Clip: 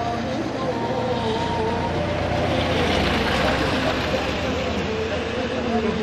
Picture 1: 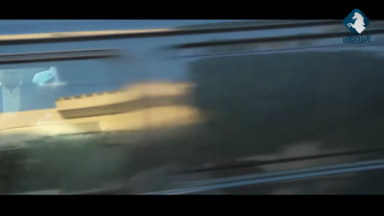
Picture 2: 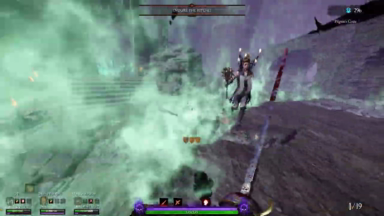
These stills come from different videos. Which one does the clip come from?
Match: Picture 1